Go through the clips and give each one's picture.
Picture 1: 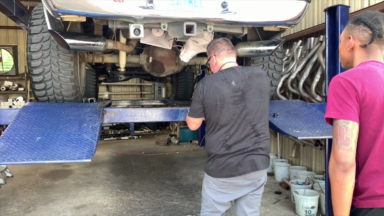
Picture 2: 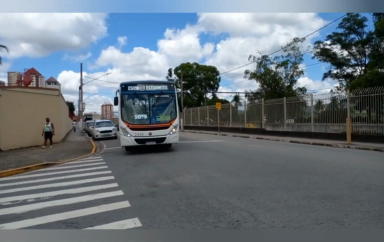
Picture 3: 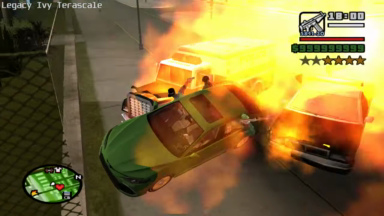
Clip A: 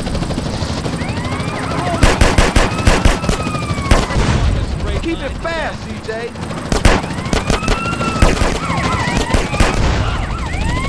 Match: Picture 3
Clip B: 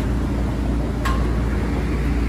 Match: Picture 1